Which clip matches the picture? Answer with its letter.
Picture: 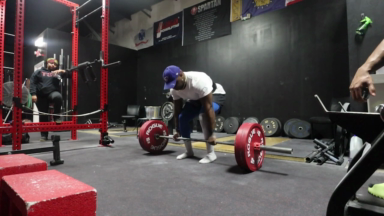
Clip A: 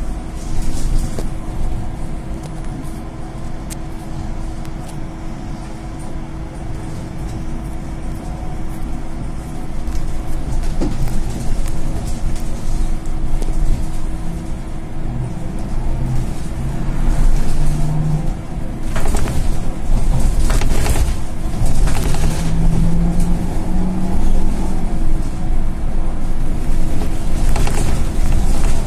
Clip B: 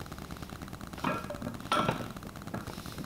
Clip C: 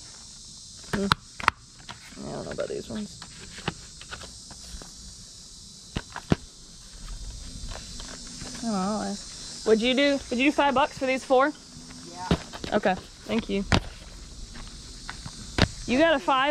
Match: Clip B